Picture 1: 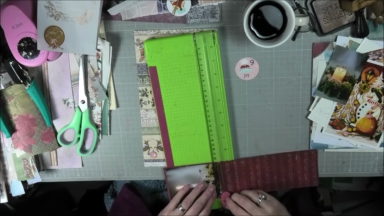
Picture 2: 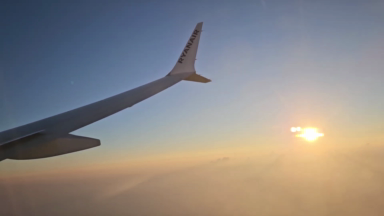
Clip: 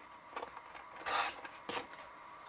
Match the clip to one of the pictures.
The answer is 1